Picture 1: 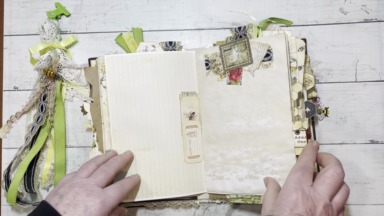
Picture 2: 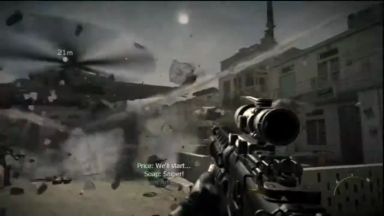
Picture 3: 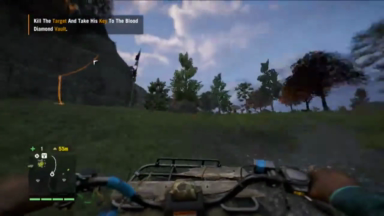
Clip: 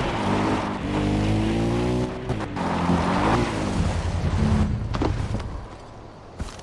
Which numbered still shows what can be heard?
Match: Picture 3